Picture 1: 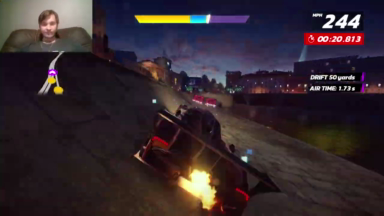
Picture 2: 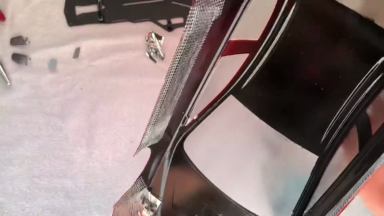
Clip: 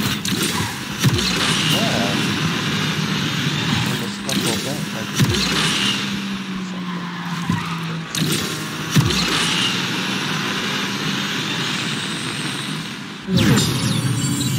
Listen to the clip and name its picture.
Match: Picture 1